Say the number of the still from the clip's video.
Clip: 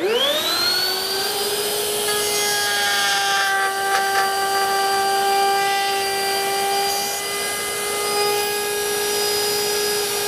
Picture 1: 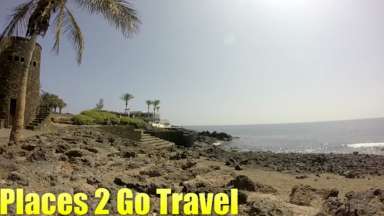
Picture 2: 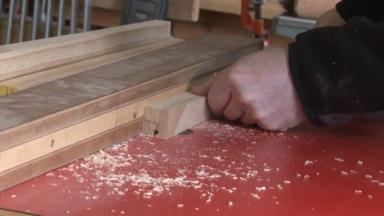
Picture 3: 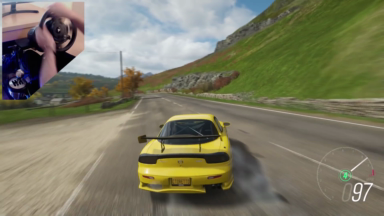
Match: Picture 2